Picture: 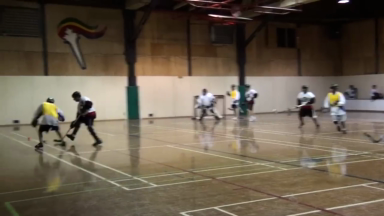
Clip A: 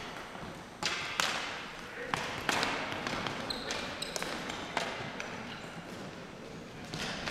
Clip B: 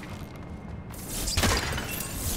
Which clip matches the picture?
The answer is A